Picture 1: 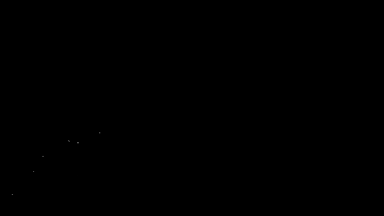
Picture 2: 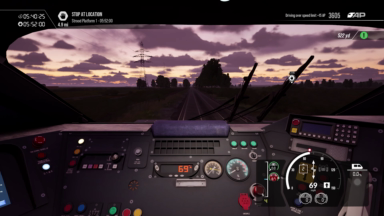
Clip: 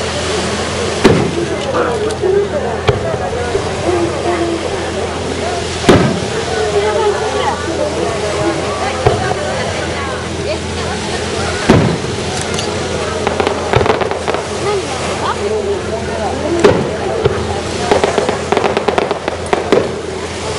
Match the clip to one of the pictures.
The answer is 1